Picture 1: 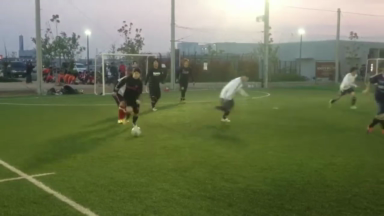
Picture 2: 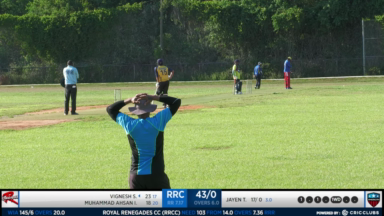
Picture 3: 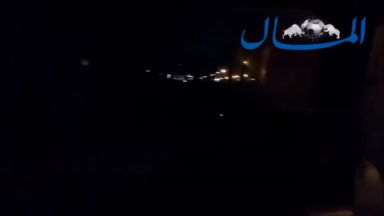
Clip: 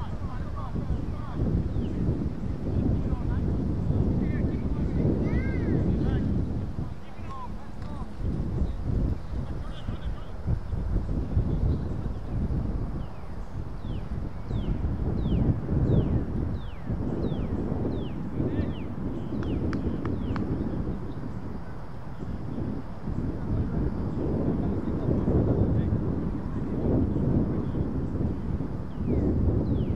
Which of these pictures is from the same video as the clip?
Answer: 2